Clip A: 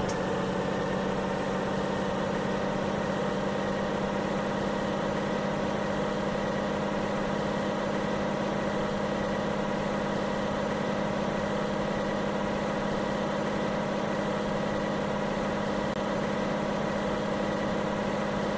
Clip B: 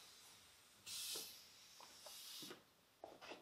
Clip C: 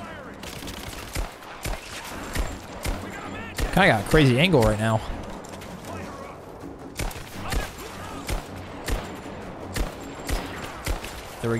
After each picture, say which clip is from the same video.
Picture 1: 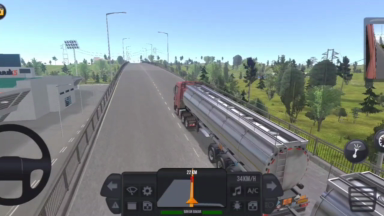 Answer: A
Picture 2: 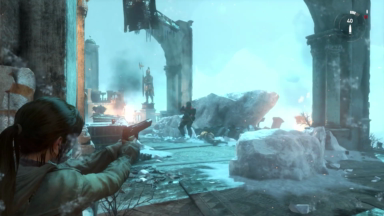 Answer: C